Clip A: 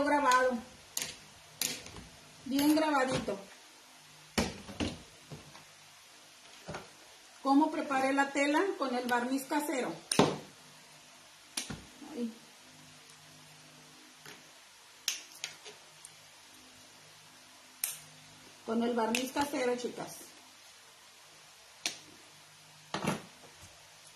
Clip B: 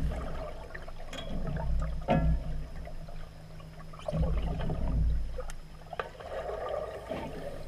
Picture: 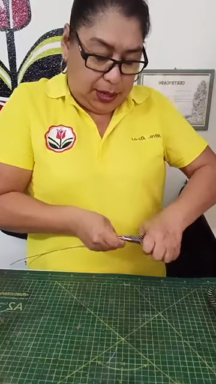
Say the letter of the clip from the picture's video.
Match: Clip A